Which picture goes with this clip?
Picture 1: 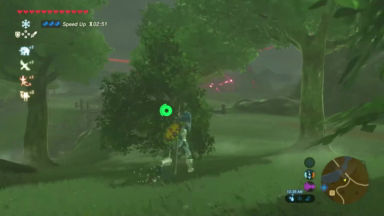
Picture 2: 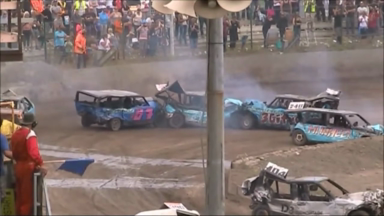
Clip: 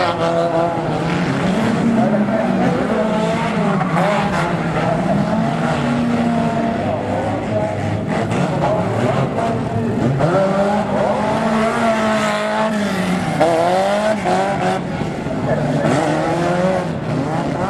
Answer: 2